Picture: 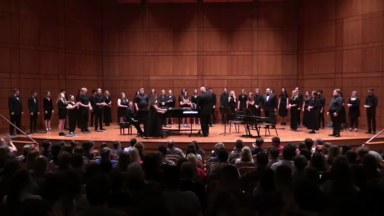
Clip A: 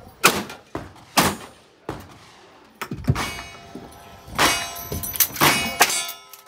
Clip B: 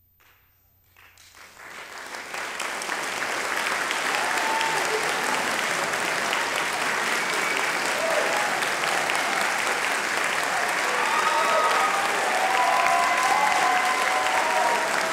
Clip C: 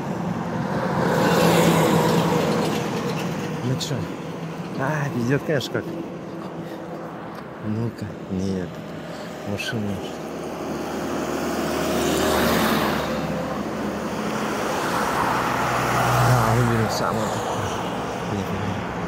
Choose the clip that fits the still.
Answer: B